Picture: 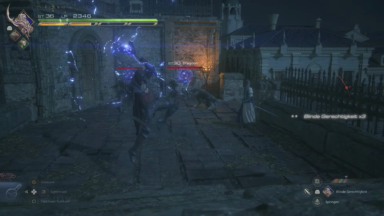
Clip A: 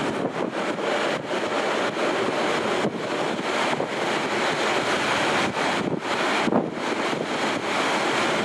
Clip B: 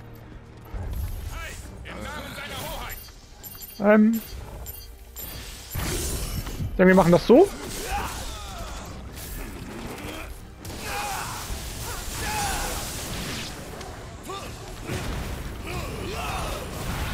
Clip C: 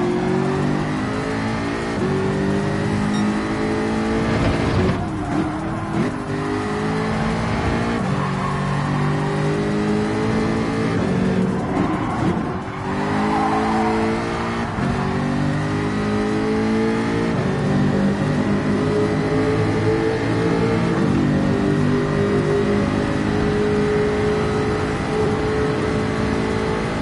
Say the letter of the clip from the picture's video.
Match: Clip B